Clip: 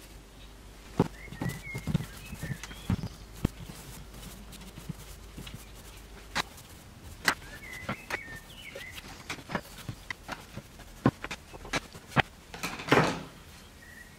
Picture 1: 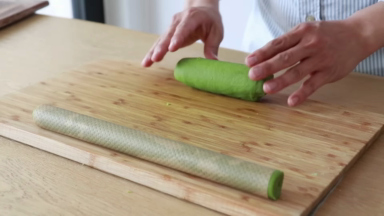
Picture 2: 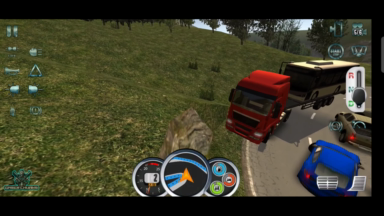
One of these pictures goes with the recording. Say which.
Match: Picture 1